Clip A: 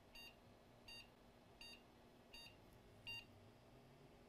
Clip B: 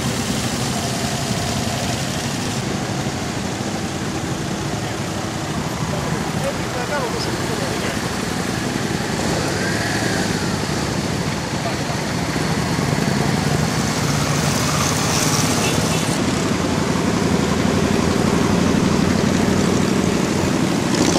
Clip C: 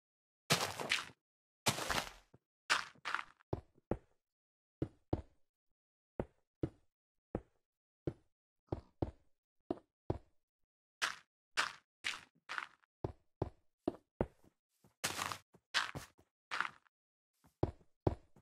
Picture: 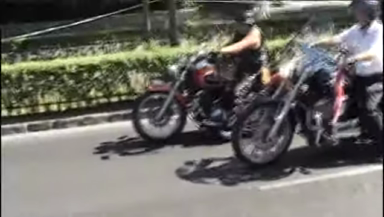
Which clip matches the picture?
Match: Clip B